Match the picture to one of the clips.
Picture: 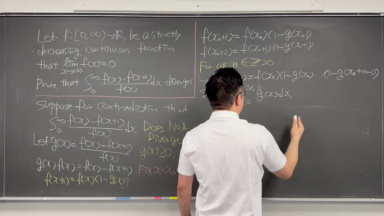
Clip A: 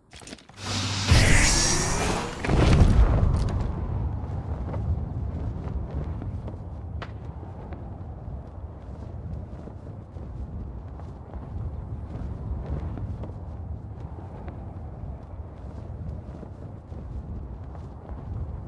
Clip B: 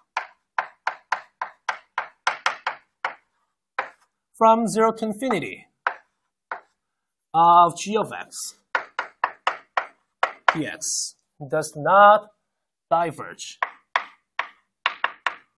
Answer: B